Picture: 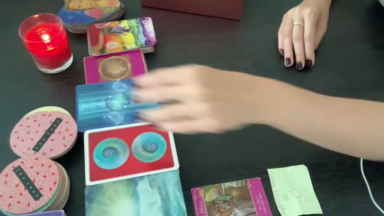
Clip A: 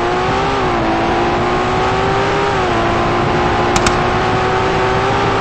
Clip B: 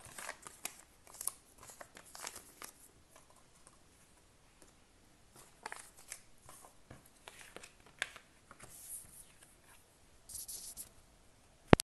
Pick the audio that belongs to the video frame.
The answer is B